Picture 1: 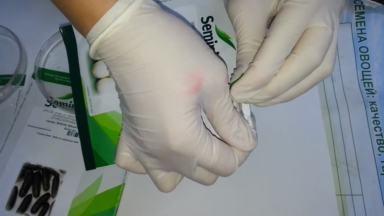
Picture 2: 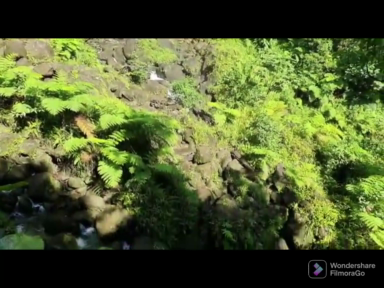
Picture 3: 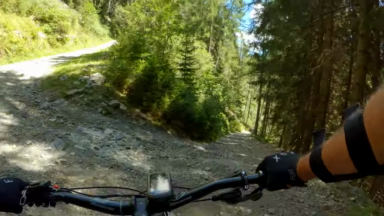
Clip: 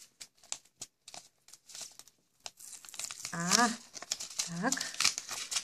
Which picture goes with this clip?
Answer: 1